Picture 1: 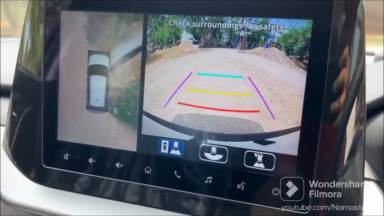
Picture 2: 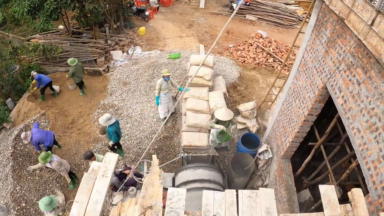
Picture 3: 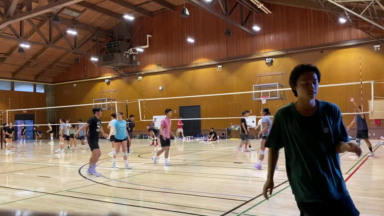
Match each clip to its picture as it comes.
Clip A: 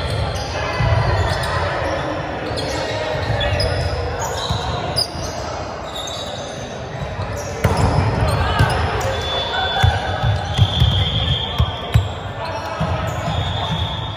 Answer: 3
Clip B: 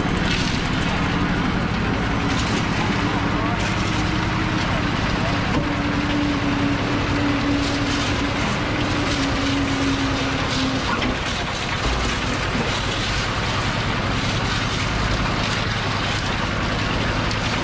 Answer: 2